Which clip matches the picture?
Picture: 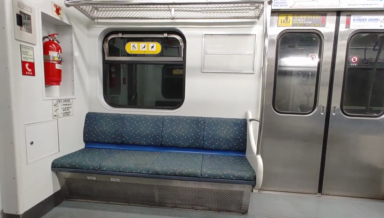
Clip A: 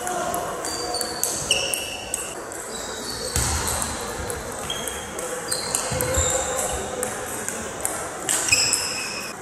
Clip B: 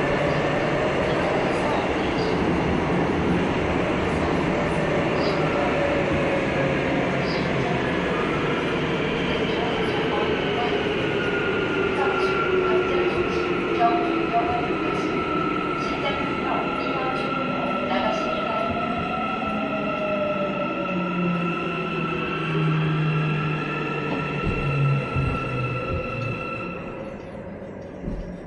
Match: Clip B